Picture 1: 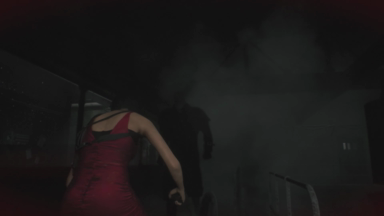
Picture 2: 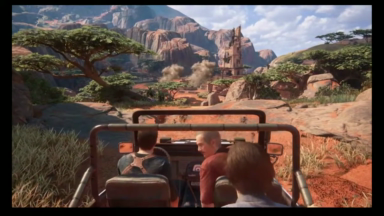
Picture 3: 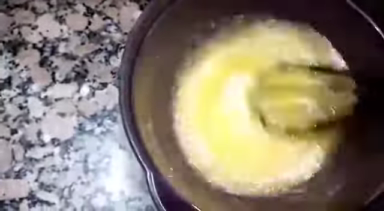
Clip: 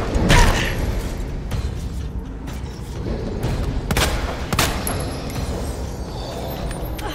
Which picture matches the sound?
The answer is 1